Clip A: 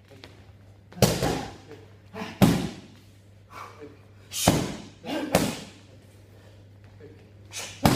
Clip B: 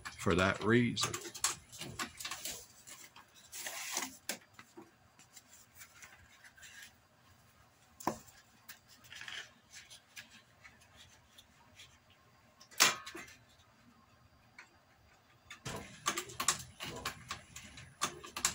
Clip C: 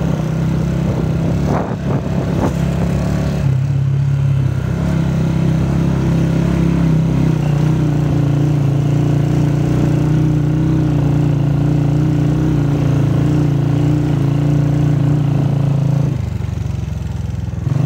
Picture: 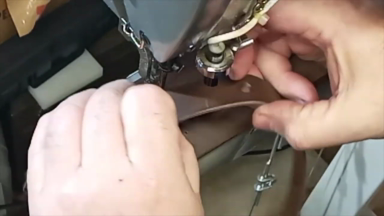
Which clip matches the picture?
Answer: B